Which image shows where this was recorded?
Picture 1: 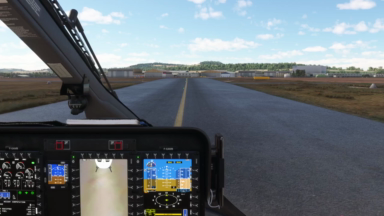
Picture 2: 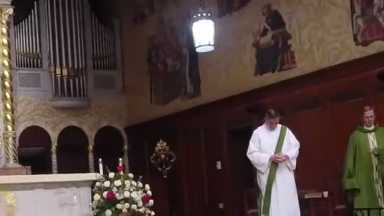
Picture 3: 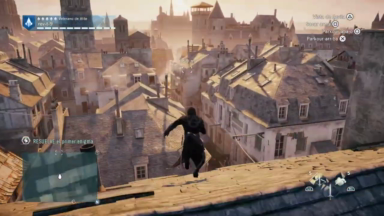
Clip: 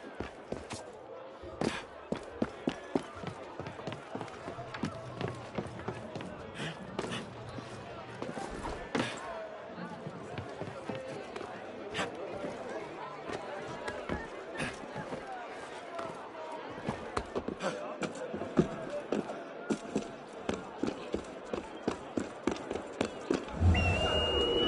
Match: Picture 3